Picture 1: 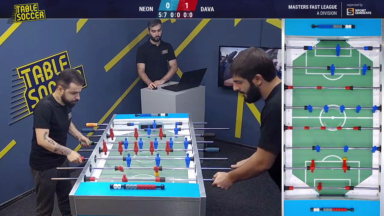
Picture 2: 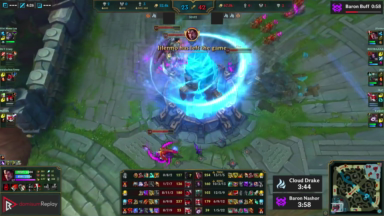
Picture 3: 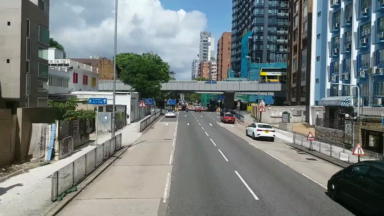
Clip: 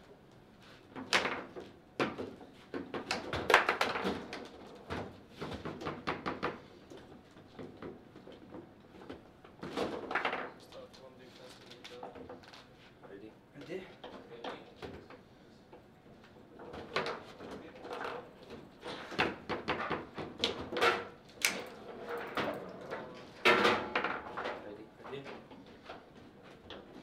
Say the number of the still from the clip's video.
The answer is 1